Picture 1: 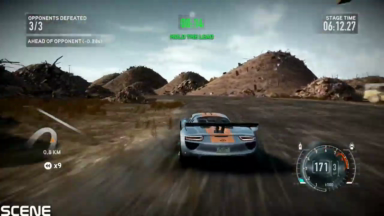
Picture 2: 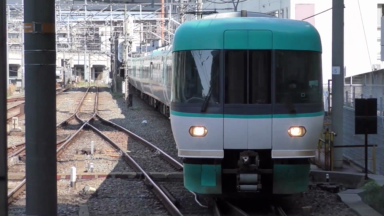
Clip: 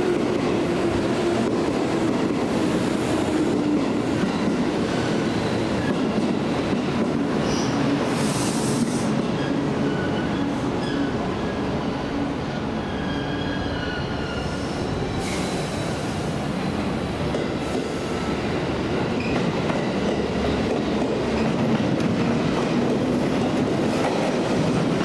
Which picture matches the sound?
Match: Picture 2